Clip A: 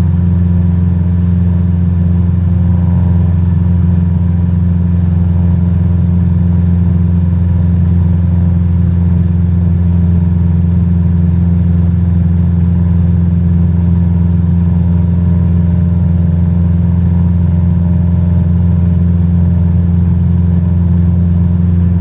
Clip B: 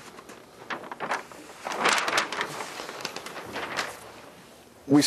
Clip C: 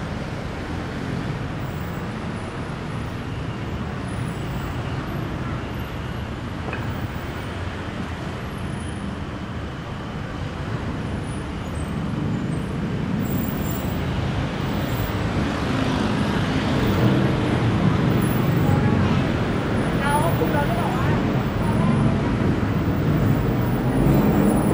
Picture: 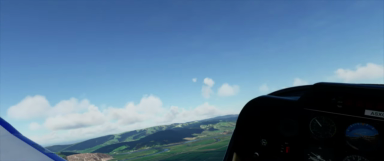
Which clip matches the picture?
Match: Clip A